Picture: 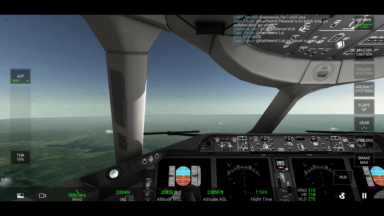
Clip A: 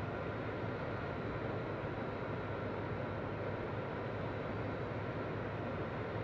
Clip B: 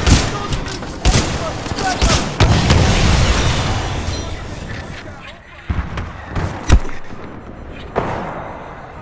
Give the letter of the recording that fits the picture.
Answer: A